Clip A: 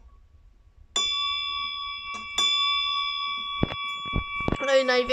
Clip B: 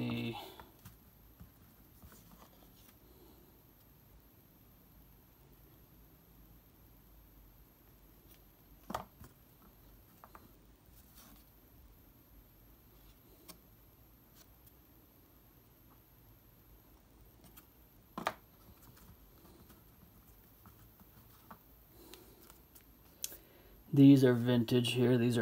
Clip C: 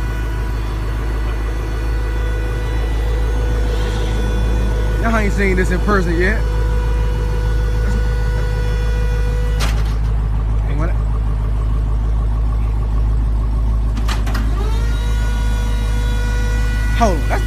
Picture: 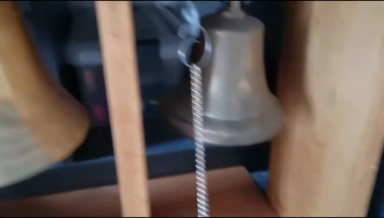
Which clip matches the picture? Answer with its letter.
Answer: A